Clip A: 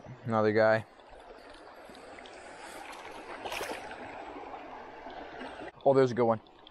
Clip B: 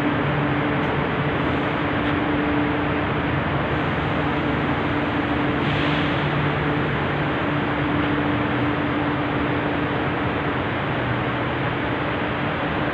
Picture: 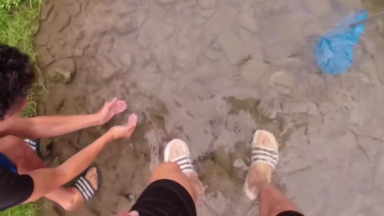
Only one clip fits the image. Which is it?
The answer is A